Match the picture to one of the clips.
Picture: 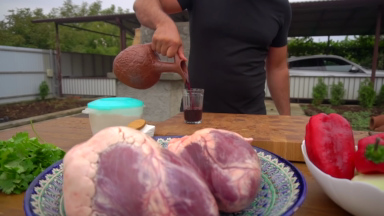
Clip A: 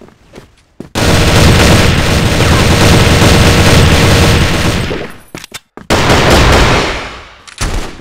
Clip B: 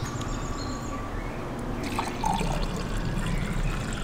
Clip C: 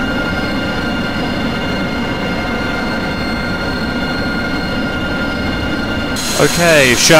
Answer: B